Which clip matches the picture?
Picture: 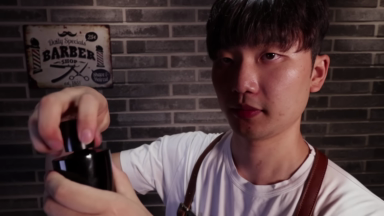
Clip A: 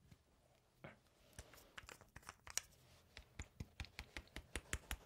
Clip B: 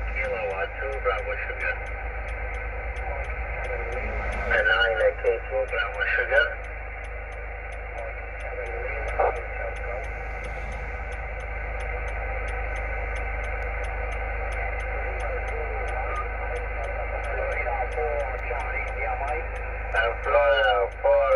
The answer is A